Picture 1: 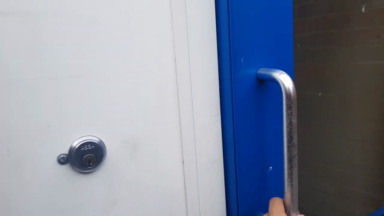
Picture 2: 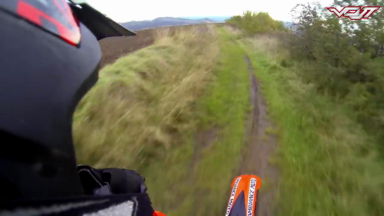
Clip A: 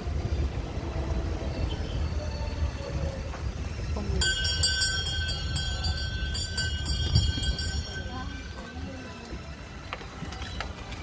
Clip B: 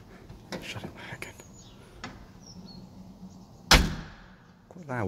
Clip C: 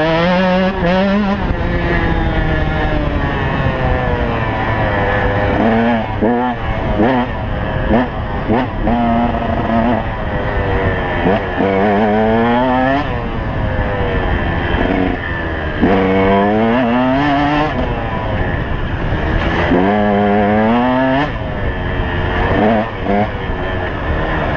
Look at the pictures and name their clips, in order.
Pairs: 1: B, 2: C